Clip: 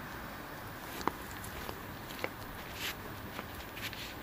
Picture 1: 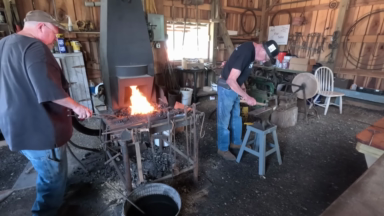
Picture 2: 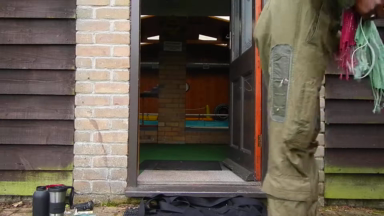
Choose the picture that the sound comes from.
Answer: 2